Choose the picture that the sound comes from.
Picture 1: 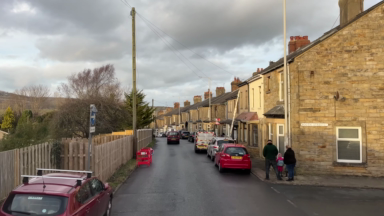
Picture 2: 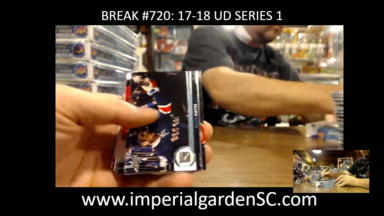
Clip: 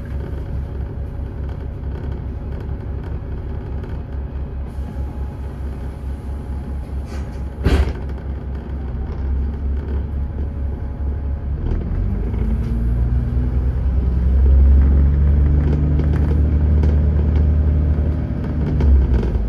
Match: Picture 1